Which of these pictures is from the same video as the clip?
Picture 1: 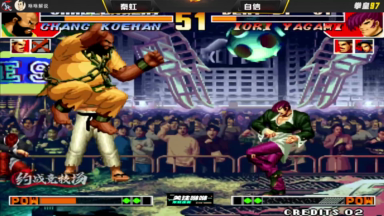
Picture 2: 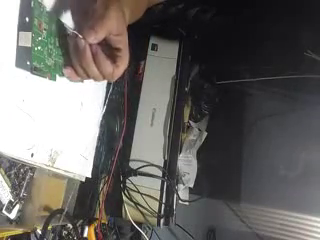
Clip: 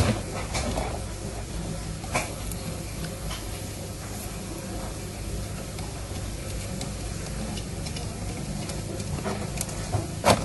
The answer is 2